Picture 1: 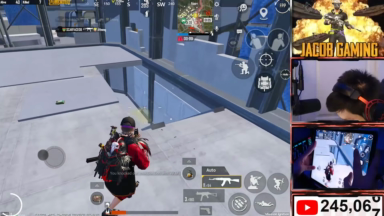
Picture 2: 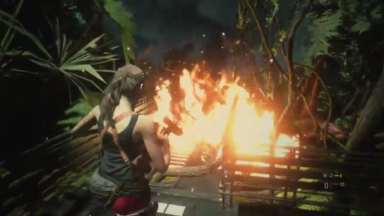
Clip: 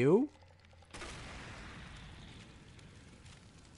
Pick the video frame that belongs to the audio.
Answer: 2